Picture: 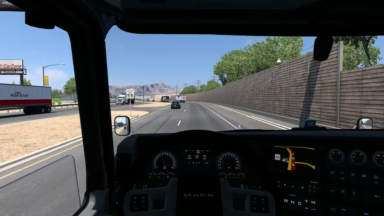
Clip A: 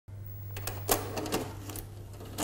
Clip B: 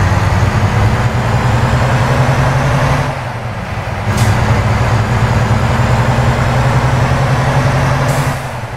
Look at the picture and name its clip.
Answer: B